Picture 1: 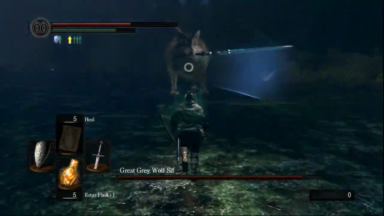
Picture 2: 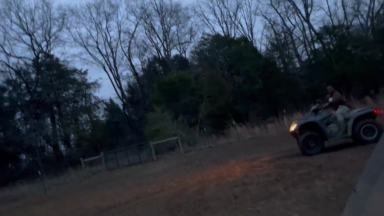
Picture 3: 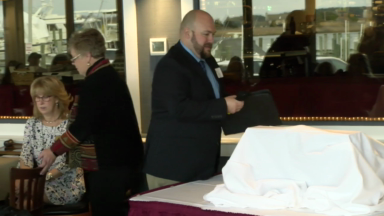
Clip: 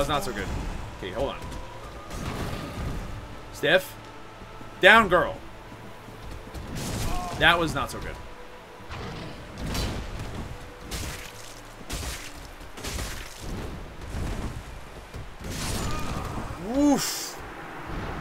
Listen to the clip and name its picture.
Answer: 1